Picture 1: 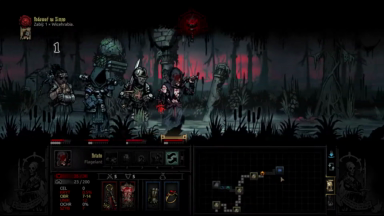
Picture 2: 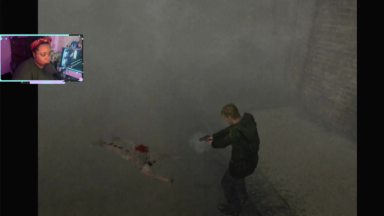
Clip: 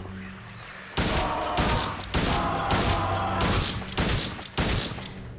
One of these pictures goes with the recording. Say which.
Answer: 2